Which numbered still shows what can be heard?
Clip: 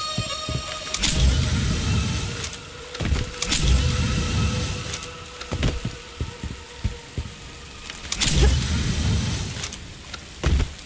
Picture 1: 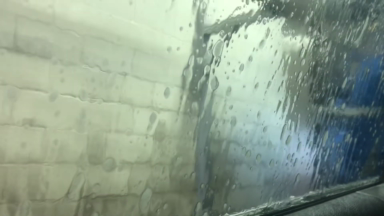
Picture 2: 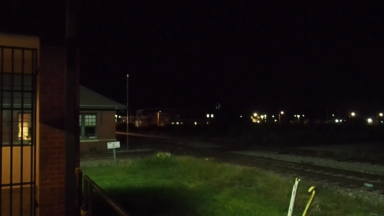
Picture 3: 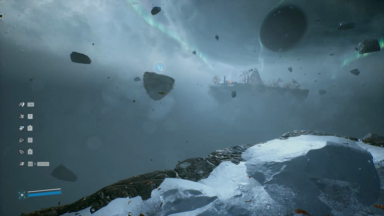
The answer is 3